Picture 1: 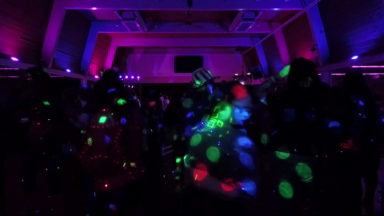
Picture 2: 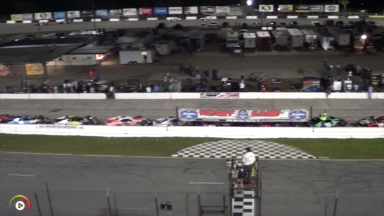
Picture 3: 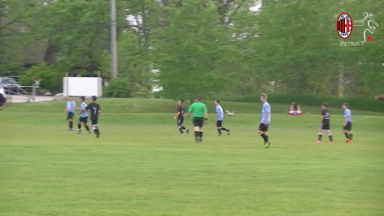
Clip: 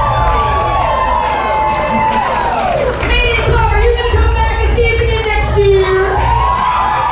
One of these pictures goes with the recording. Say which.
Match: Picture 1